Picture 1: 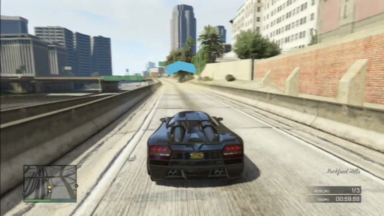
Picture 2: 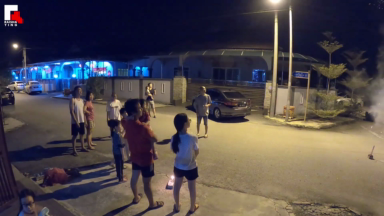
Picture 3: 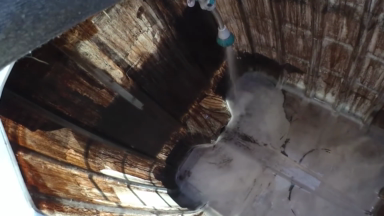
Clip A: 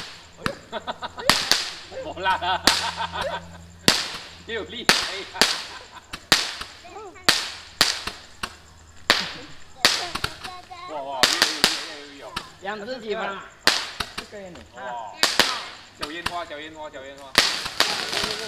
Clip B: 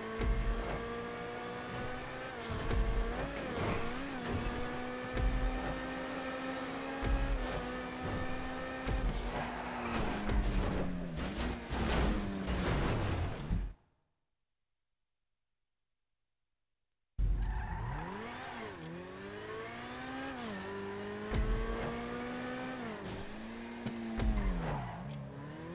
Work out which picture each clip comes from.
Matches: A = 2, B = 1